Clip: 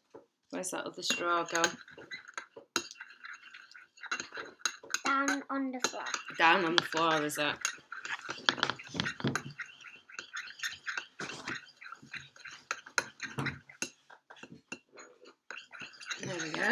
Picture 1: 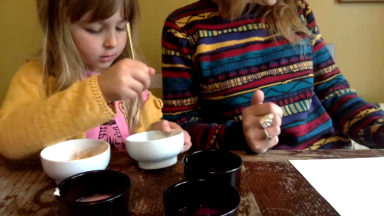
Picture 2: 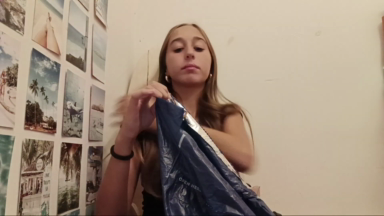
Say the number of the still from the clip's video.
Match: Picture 1